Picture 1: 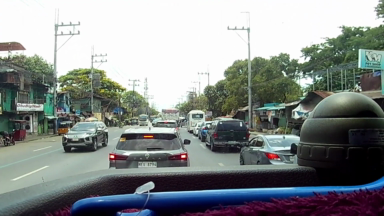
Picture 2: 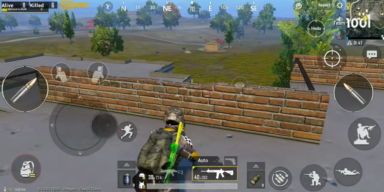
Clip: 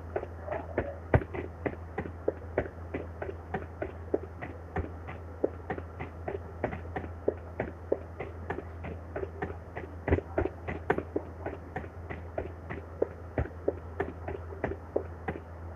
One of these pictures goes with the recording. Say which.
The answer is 2